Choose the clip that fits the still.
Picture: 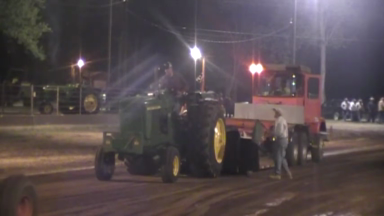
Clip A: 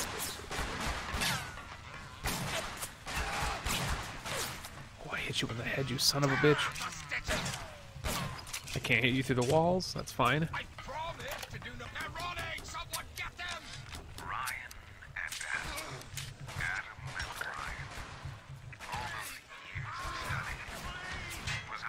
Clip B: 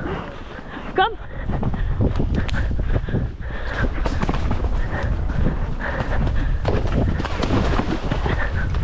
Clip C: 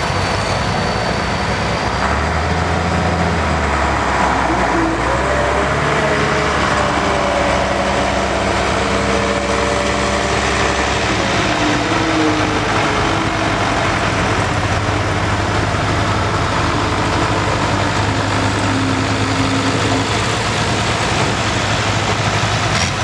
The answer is C